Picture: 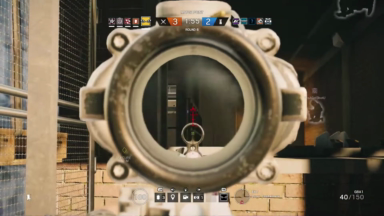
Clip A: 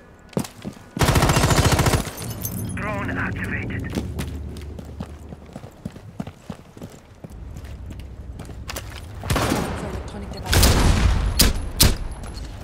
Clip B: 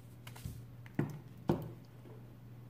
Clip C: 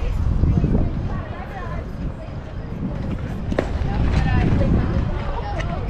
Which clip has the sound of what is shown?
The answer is A